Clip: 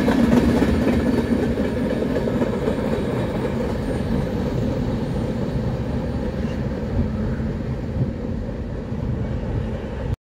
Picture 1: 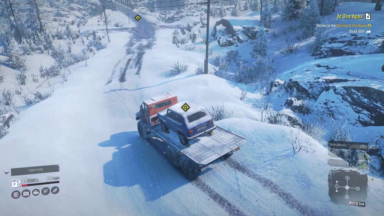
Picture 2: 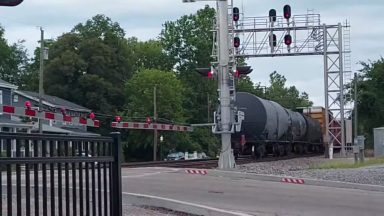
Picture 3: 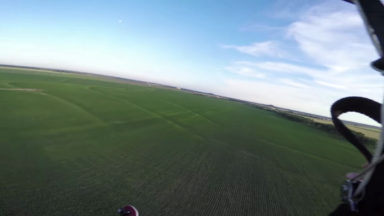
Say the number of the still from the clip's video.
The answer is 2